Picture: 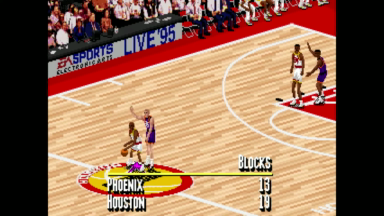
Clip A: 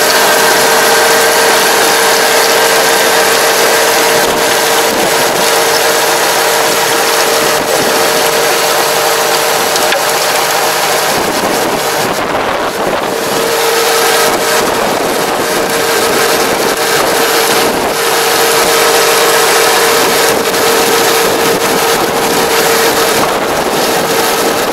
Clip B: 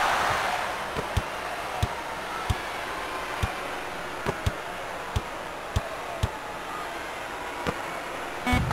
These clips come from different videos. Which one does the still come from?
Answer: B